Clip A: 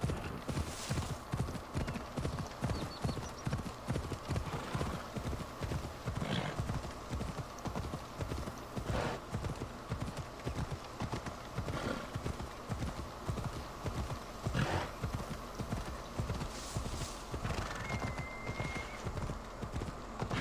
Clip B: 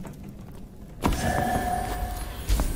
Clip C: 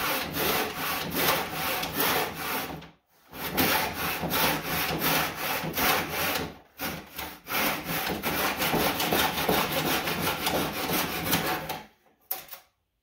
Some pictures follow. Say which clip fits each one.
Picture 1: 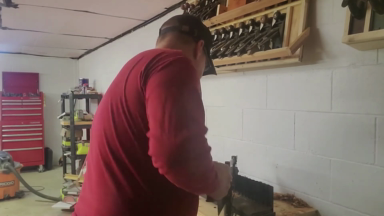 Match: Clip C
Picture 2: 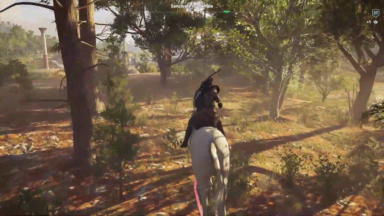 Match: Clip A